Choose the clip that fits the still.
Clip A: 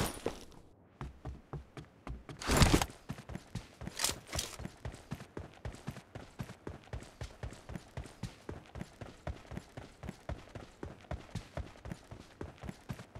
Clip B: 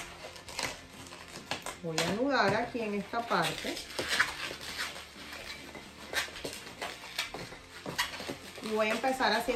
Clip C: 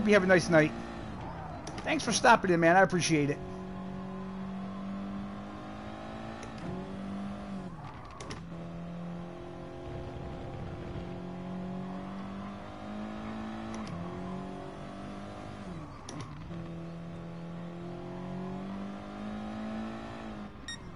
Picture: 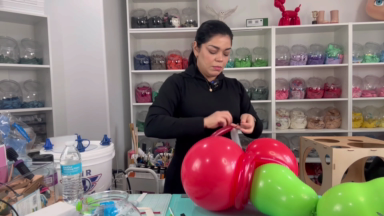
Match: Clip B